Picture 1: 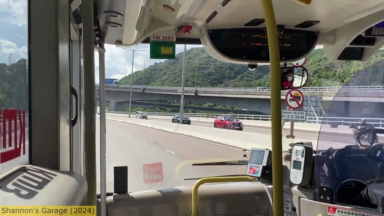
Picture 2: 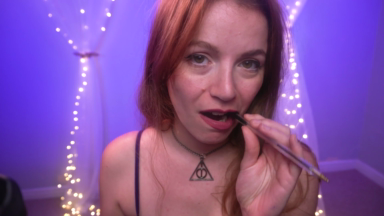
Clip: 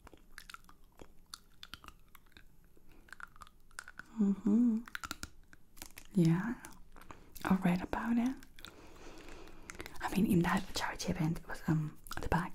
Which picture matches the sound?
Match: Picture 2